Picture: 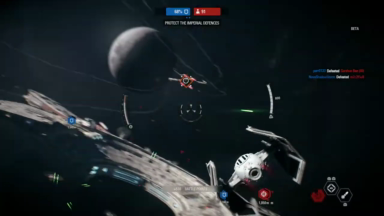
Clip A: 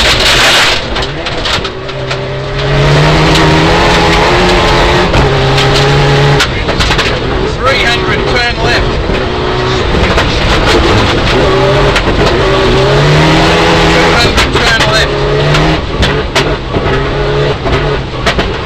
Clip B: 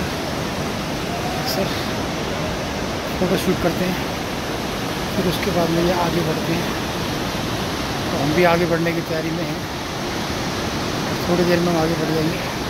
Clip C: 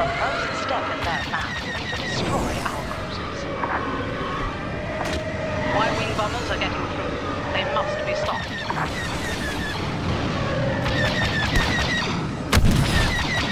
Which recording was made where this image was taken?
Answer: C